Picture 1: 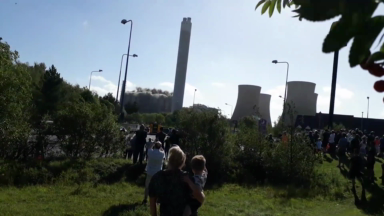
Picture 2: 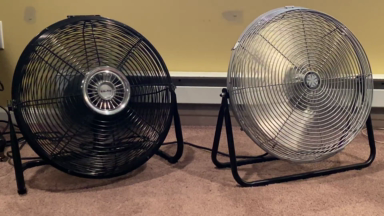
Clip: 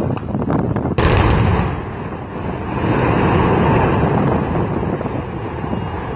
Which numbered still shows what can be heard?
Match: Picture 1